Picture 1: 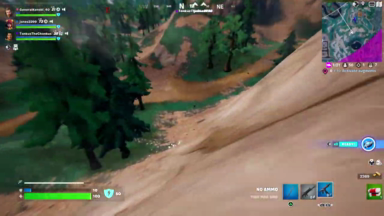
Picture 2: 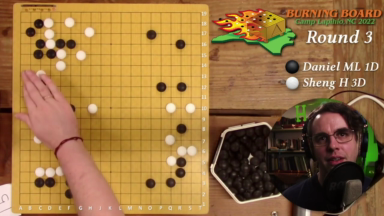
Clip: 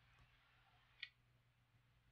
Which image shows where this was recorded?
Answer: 2